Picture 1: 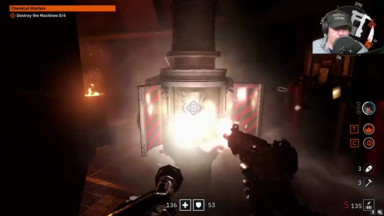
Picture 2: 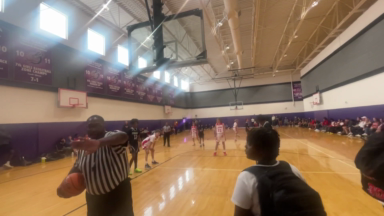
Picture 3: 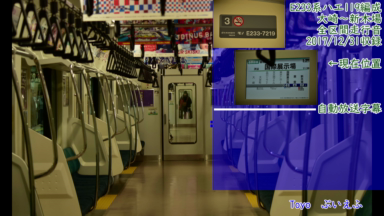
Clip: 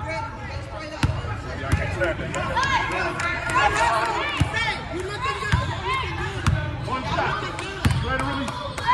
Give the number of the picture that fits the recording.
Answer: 2